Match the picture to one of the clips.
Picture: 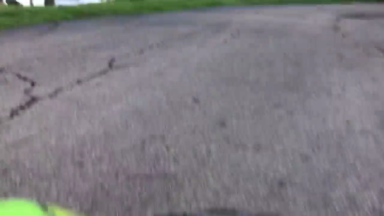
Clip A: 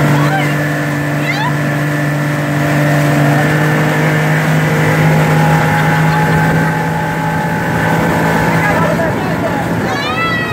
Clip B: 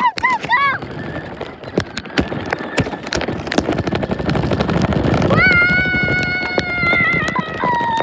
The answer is B